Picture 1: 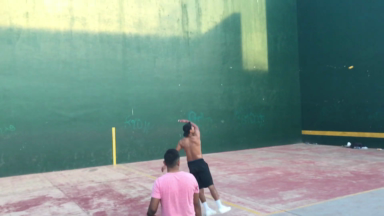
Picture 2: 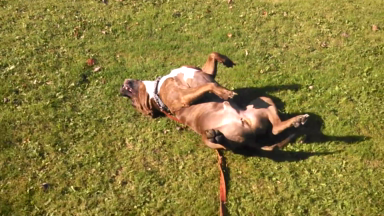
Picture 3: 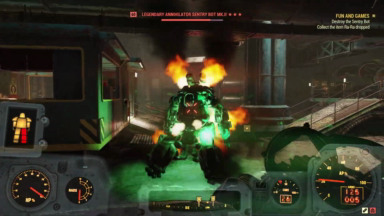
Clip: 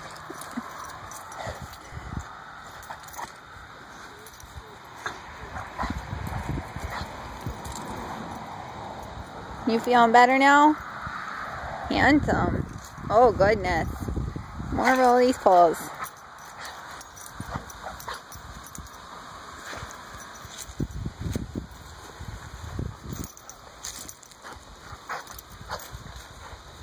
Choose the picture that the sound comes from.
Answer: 2